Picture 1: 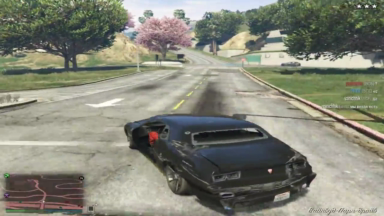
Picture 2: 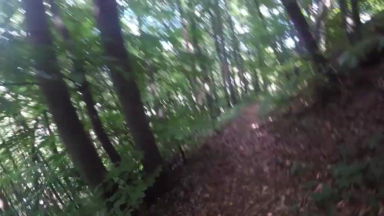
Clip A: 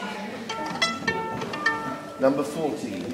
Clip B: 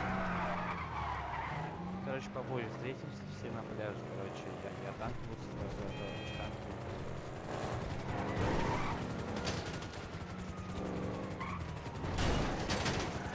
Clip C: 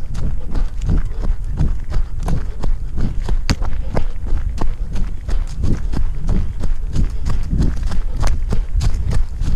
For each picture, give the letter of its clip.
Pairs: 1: B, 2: C